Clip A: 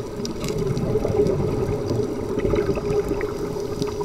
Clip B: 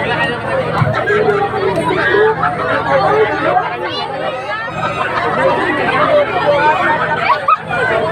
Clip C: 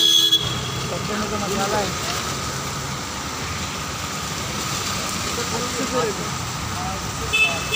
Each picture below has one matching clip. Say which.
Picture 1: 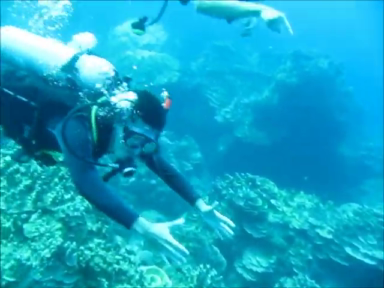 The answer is A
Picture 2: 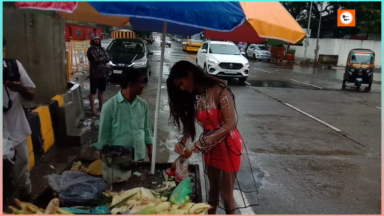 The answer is C